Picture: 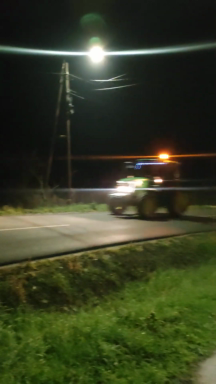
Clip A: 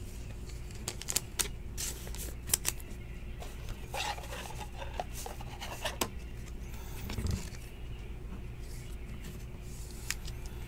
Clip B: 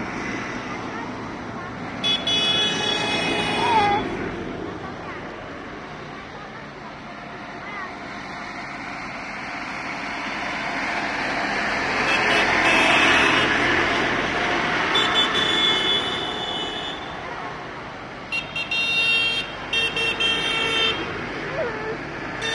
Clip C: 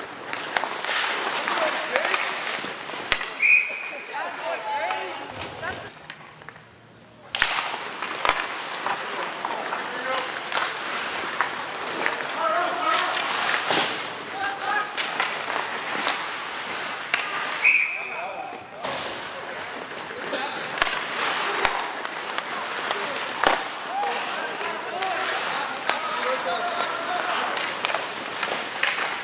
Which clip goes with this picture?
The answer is B